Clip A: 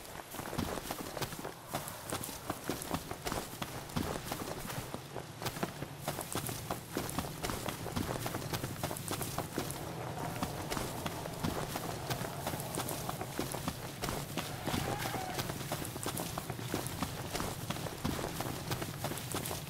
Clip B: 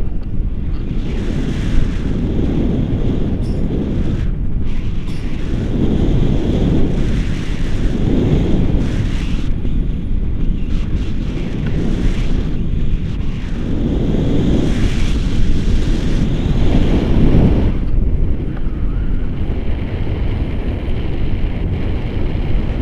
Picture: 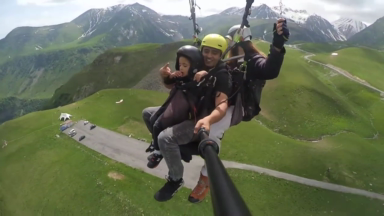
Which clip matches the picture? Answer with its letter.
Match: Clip B